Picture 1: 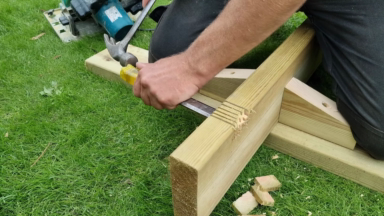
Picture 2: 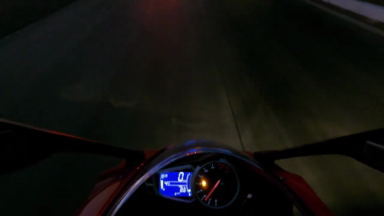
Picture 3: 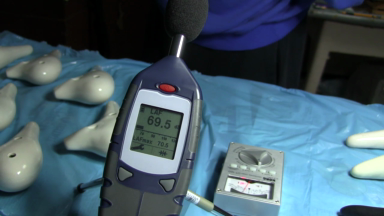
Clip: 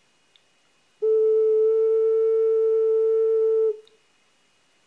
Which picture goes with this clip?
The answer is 3